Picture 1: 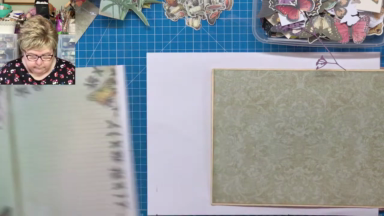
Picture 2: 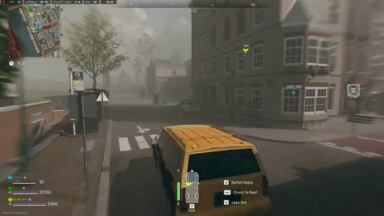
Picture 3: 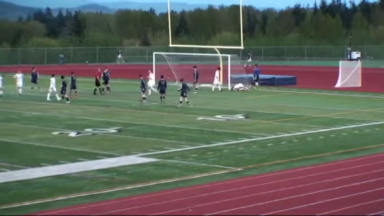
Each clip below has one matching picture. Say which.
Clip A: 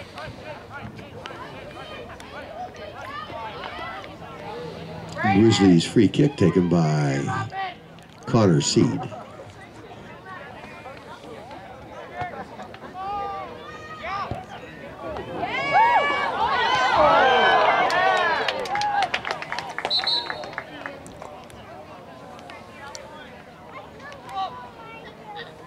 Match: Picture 3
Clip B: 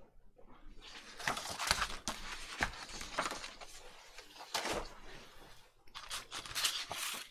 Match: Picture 1